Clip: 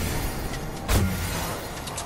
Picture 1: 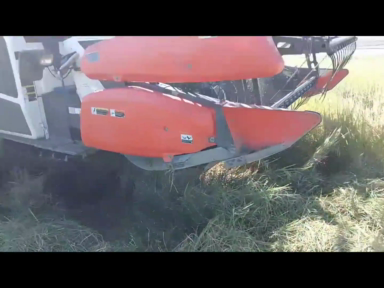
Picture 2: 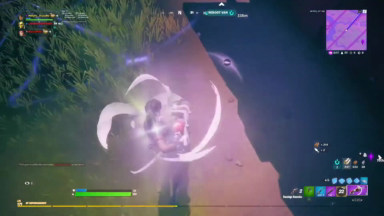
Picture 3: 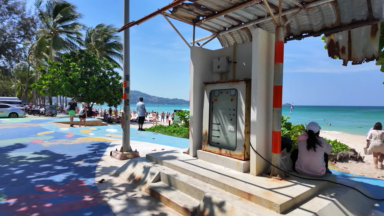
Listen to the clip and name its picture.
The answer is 2